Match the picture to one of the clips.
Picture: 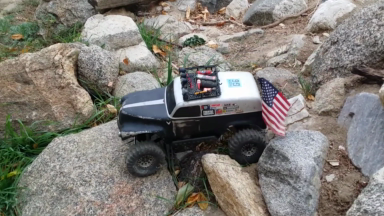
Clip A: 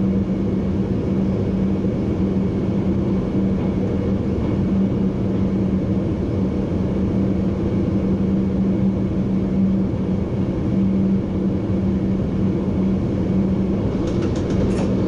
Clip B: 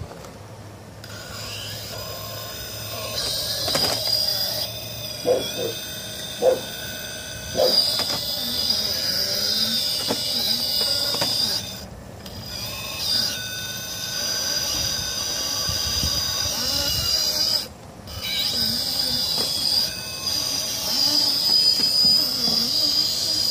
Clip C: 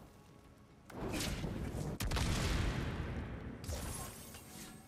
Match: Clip B